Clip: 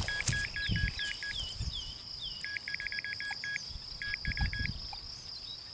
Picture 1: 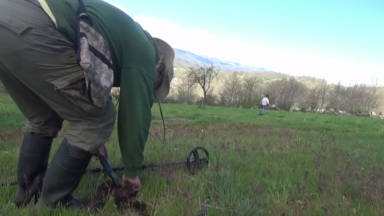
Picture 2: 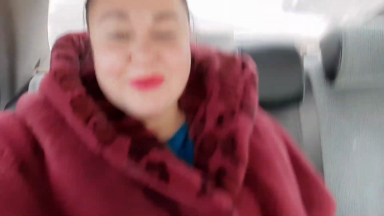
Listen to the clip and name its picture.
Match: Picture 1